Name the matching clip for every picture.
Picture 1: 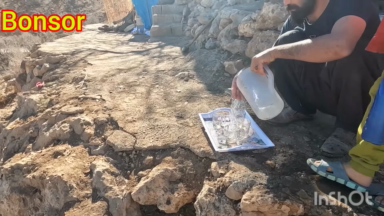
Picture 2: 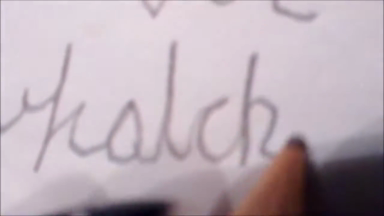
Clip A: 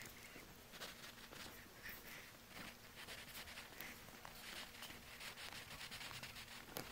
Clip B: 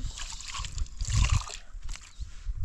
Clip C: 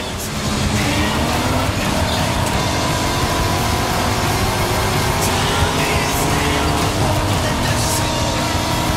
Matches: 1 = B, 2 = A